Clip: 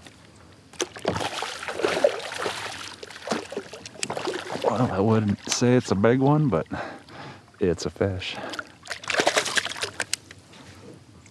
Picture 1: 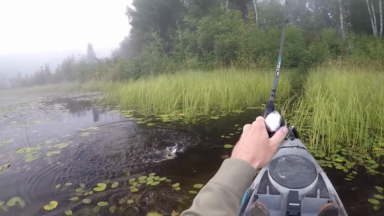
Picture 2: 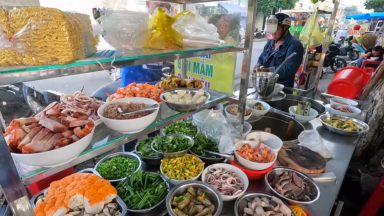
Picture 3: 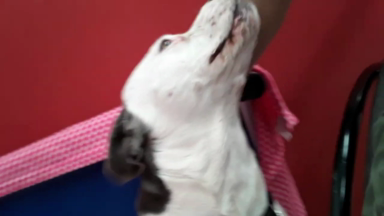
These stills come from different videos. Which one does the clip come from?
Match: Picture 1